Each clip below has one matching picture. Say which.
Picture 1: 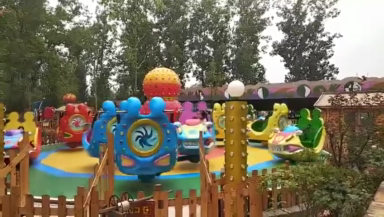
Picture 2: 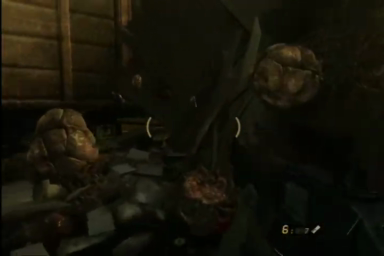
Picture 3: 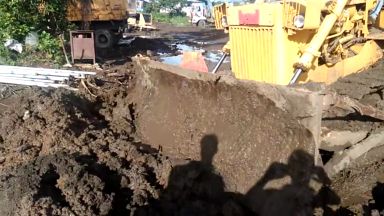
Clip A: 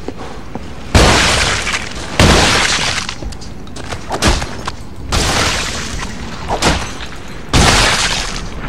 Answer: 2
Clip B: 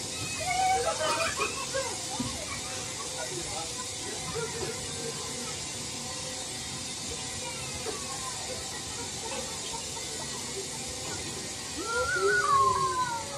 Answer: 1